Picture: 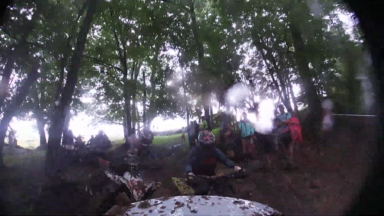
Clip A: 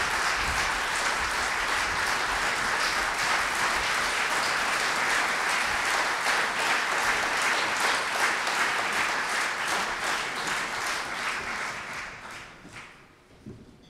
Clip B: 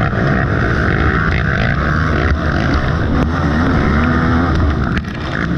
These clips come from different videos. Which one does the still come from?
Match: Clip B